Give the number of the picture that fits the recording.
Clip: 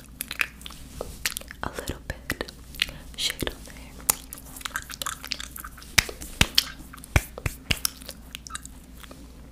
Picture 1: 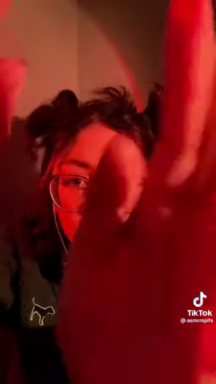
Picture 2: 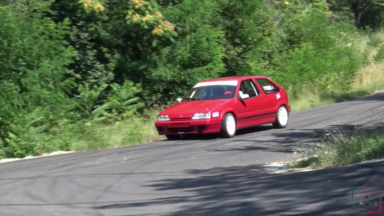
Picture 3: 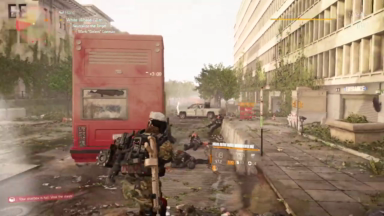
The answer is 1